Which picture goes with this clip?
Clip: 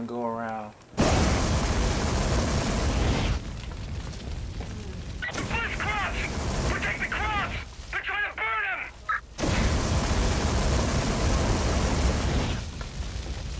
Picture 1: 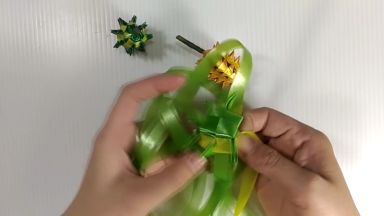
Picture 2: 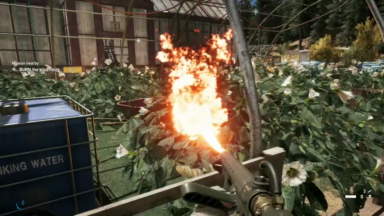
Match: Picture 2